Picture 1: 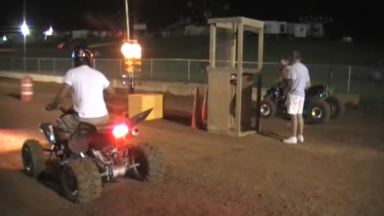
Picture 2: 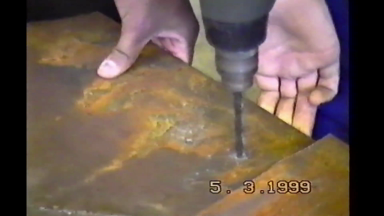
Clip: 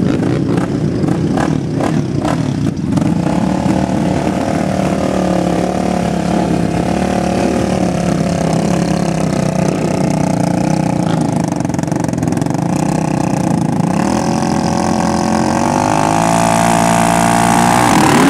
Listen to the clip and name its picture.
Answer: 1